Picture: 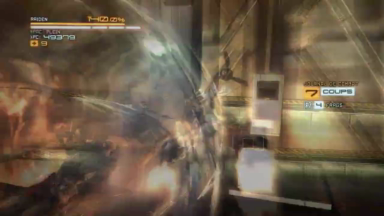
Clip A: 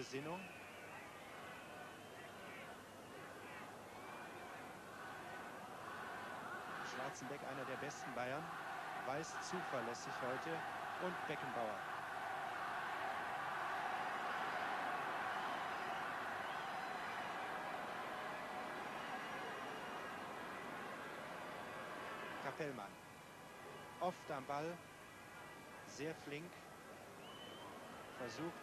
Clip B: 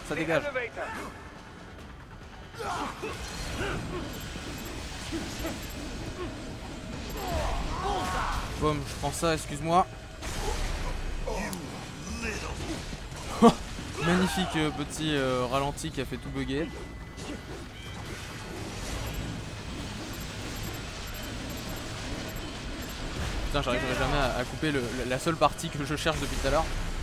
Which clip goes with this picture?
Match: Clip B